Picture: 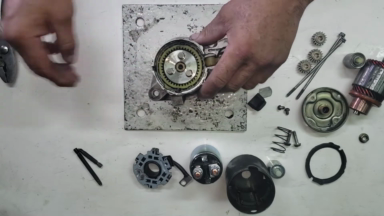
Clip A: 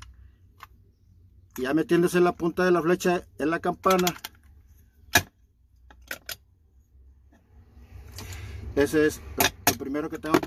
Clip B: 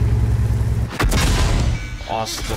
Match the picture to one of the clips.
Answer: A